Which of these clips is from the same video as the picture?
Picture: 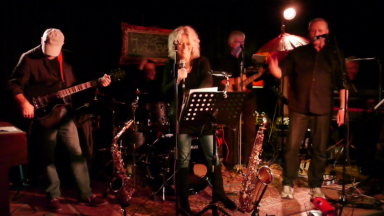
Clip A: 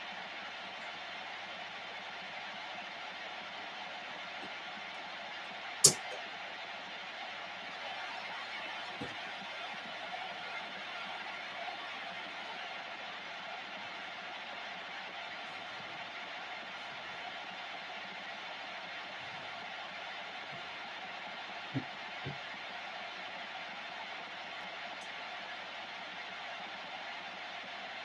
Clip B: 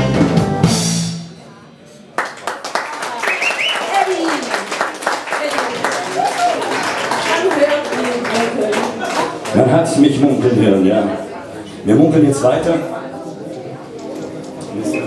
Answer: B